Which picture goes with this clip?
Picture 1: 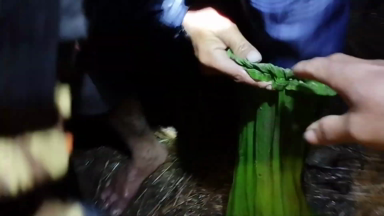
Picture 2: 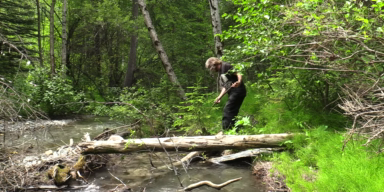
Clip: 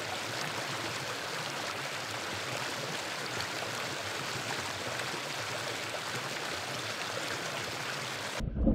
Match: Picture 2